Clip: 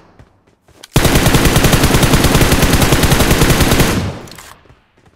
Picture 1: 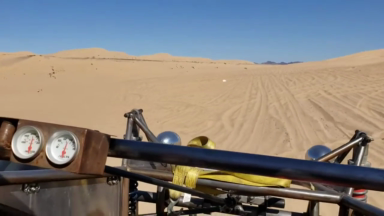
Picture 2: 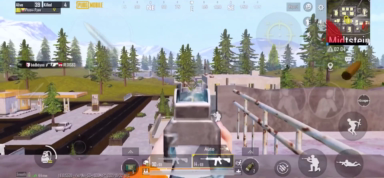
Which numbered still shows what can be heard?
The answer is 2